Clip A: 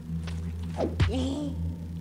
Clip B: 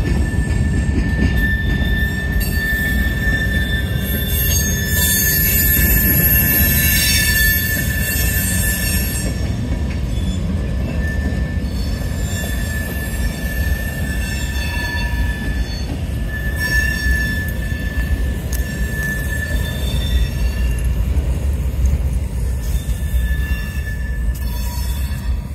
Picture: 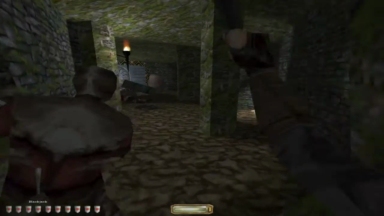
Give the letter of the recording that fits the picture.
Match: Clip A